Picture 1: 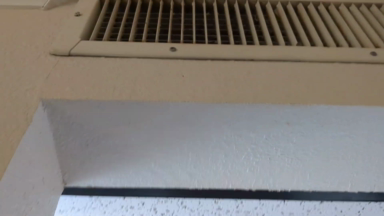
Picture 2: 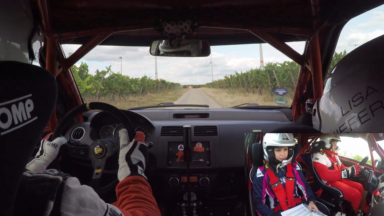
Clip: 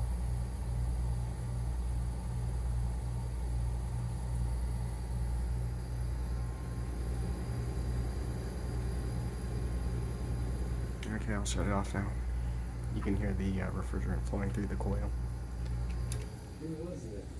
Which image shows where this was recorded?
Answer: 1